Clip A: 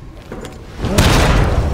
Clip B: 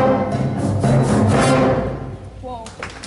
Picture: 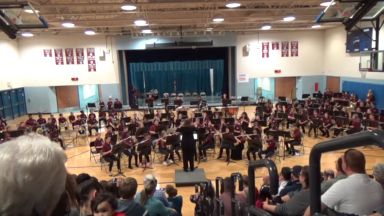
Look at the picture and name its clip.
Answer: B